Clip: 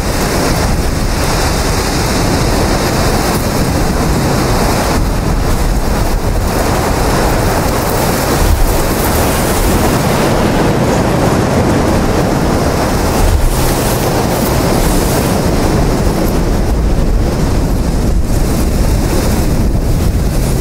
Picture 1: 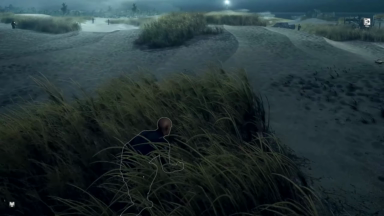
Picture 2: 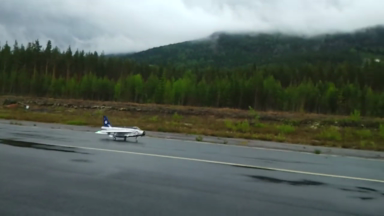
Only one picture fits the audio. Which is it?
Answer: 1